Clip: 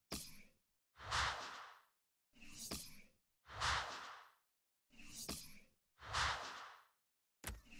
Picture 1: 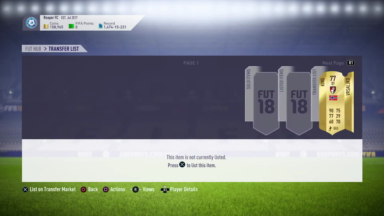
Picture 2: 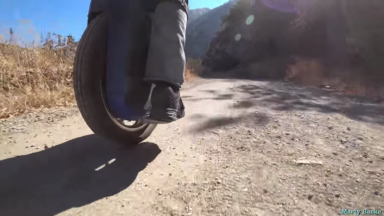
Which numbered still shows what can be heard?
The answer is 1